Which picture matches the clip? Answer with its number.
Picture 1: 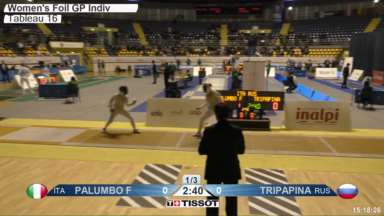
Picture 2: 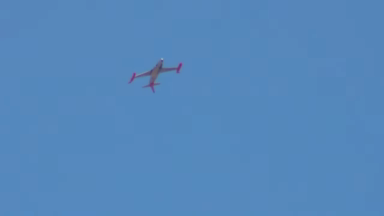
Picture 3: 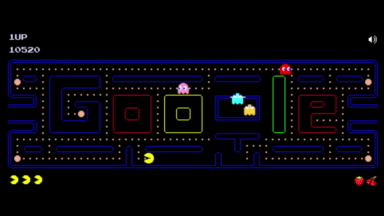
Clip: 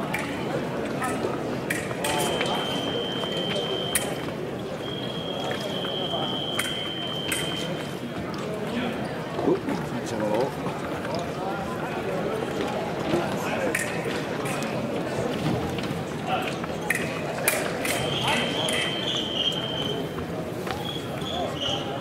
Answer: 1